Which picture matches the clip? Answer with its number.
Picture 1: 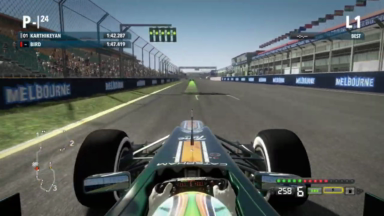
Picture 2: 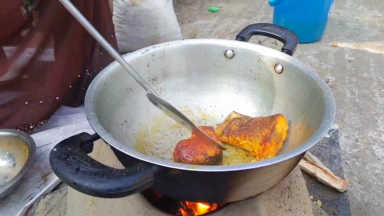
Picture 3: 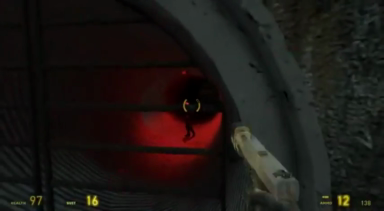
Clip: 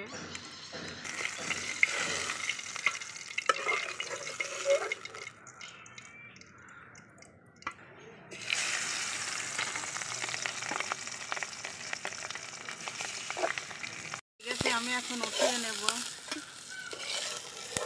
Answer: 2